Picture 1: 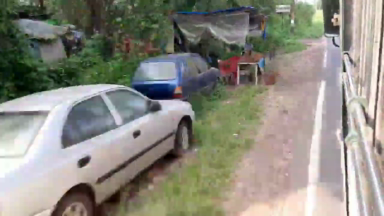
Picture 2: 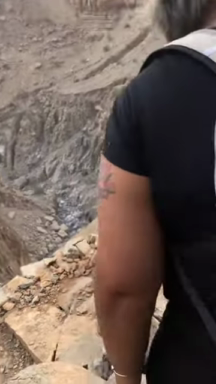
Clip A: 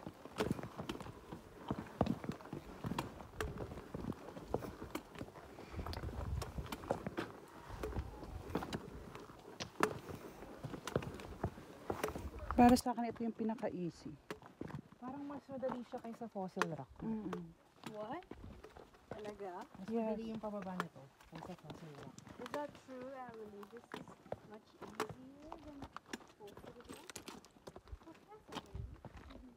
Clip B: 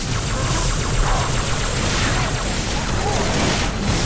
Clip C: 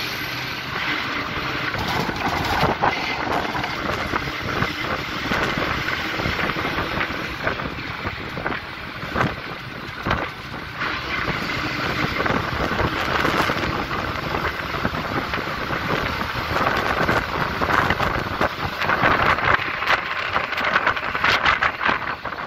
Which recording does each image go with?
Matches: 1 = C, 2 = A